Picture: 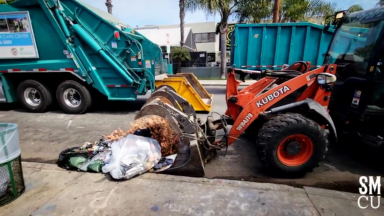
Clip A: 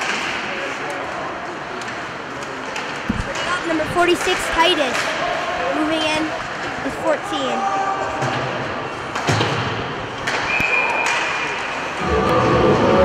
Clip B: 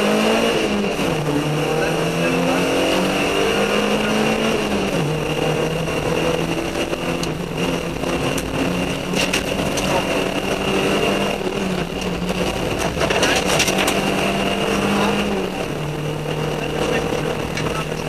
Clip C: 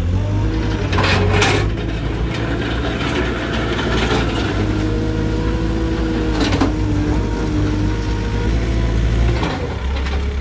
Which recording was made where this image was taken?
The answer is C